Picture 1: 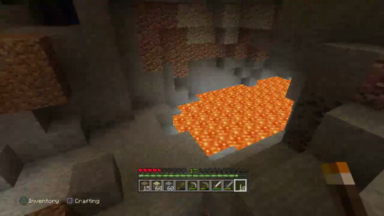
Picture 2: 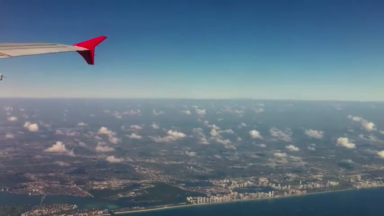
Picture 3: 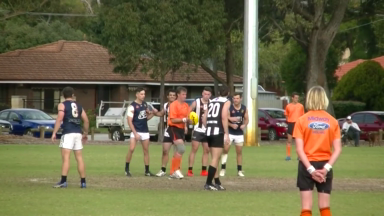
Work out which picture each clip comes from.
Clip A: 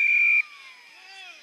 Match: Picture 3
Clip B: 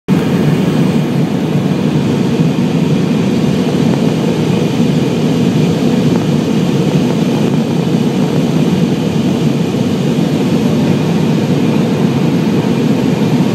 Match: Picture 2